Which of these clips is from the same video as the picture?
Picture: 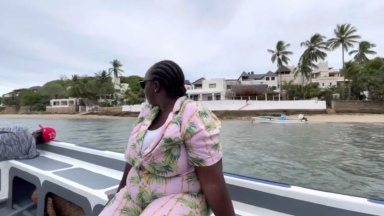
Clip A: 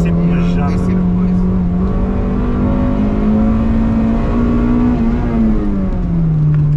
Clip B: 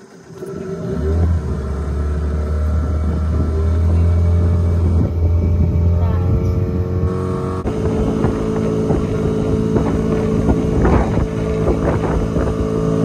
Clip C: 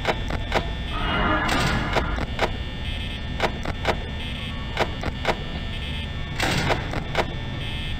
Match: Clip B